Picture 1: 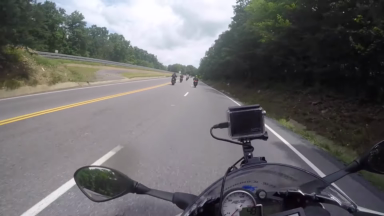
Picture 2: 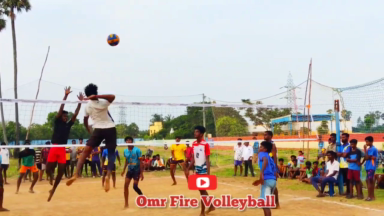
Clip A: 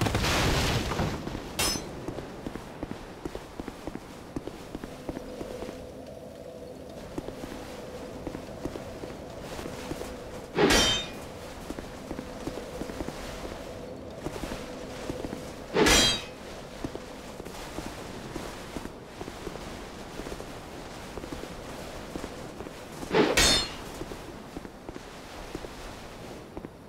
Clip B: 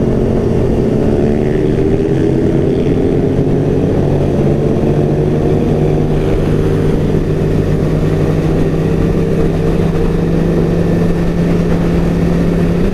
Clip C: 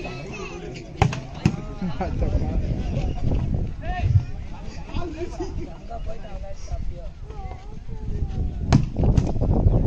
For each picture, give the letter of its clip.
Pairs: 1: B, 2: C